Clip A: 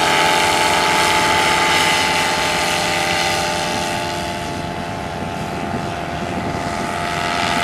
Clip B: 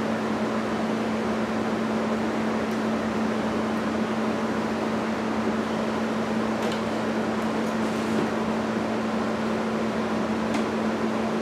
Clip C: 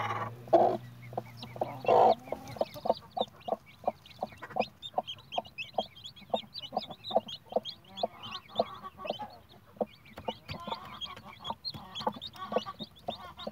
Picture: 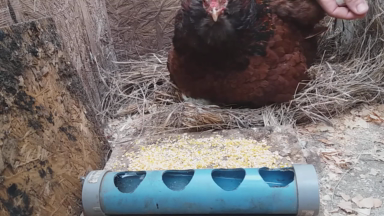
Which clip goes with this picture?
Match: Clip C